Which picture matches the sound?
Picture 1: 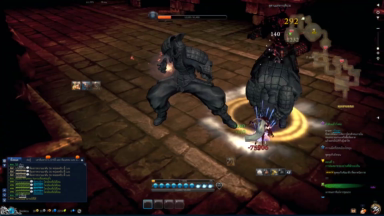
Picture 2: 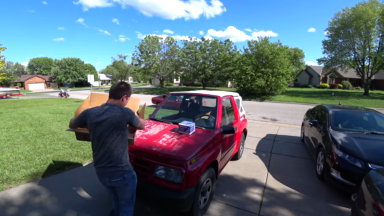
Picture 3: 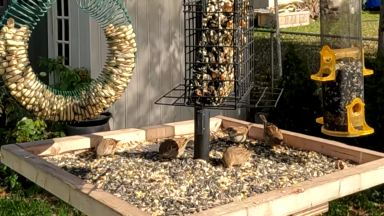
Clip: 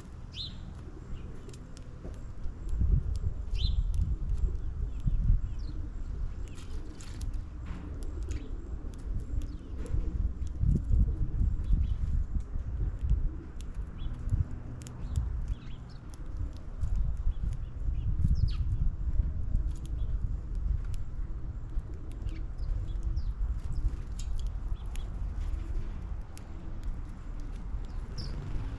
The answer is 3